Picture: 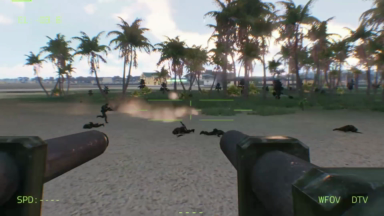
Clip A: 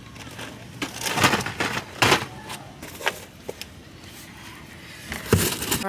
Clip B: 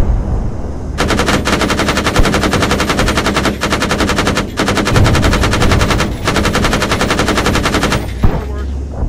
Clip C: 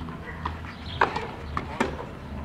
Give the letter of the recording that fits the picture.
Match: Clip B